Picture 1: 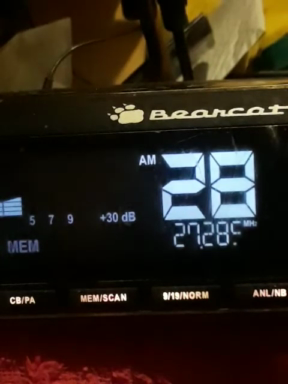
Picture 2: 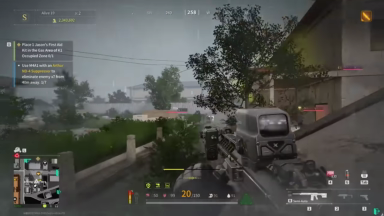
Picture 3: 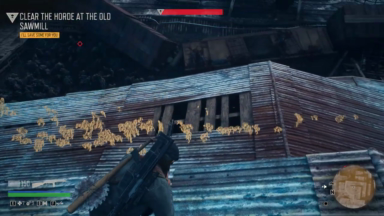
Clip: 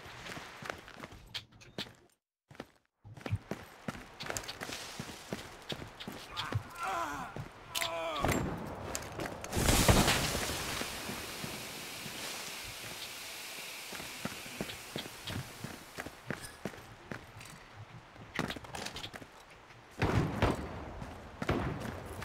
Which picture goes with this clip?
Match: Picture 2